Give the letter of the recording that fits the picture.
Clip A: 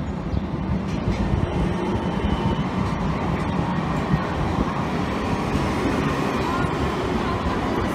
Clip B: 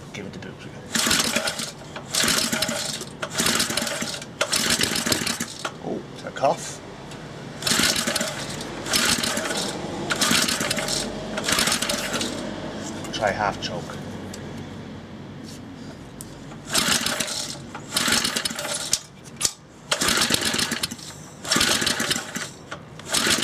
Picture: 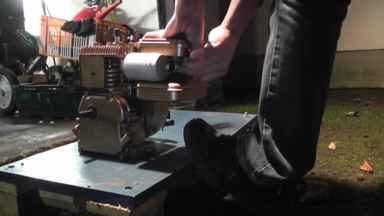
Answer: B